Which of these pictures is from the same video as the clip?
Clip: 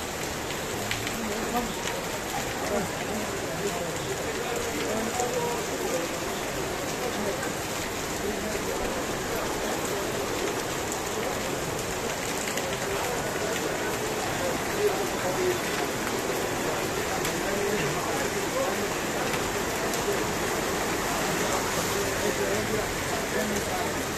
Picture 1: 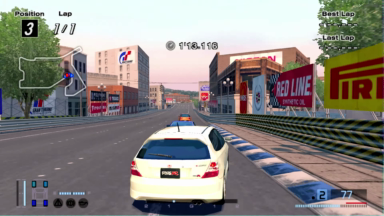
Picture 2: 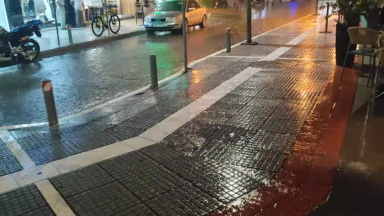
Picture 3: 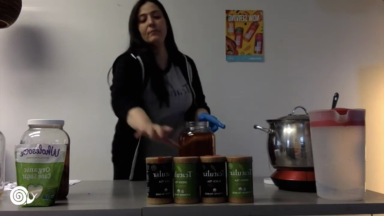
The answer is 2